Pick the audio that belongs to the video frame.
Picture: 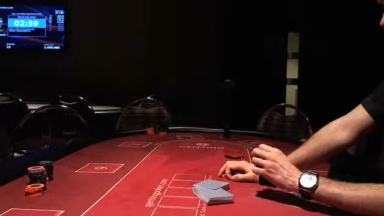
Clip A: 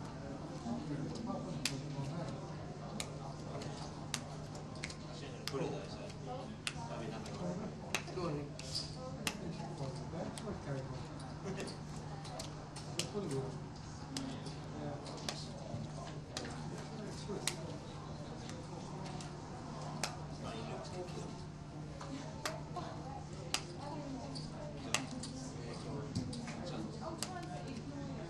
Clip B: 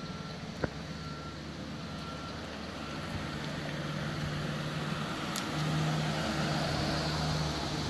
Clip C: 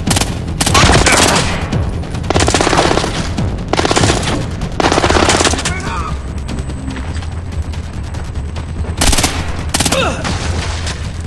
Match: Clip A